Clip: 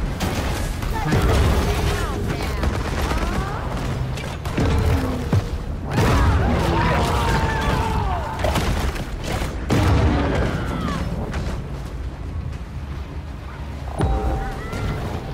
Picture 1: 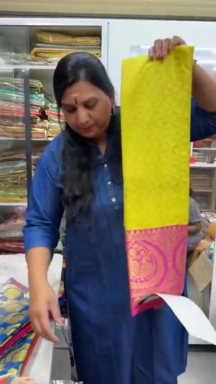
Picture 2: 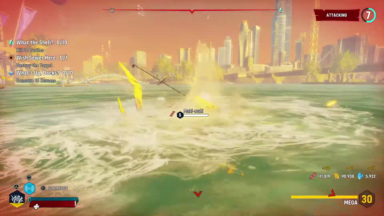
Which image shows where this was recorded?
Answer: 2